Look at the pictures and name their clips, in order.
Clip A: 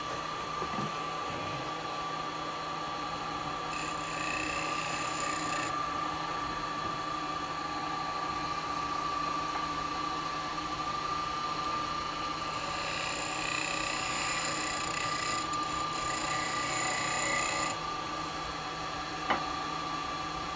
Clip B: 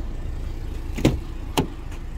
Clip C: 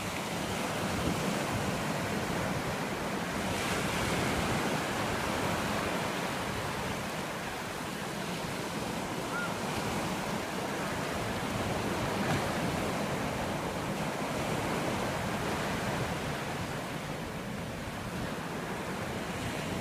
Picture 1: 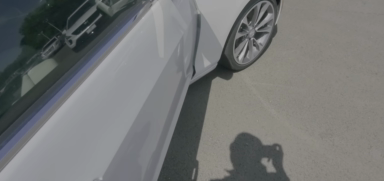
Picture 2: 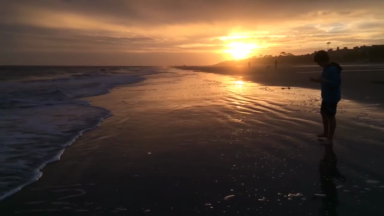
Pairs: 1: B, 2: C